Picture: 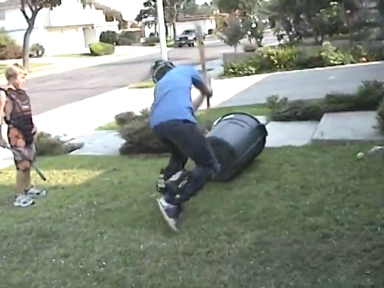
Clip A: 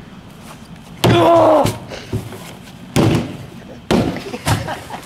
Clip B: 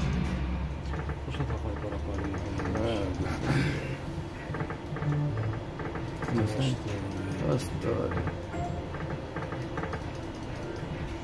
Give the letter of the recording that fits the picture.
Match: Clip A